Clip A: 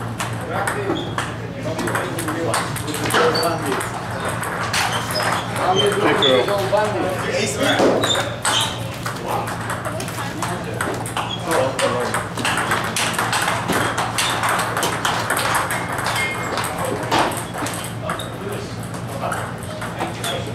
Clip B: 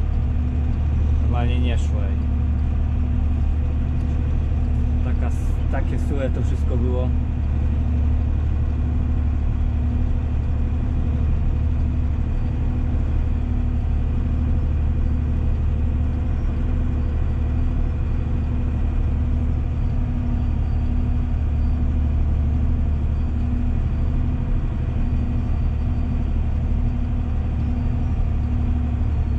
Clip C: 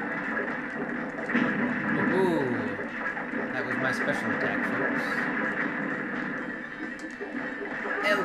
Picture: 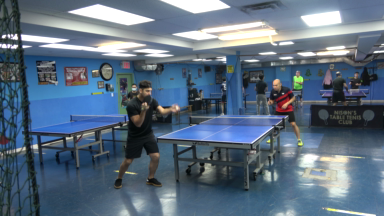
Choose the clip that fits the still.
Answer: A